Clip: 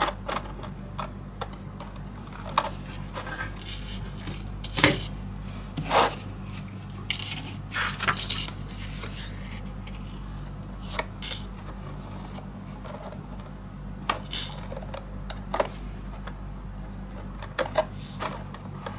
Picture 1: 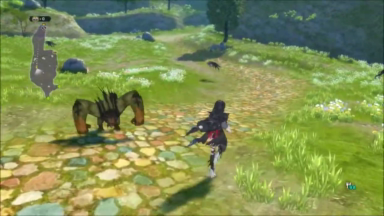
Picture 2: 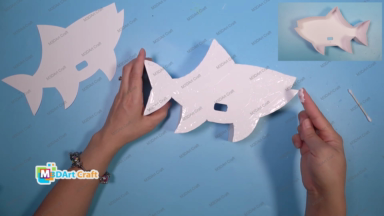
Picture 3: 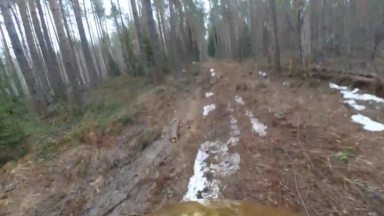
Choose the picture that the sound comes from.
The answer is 2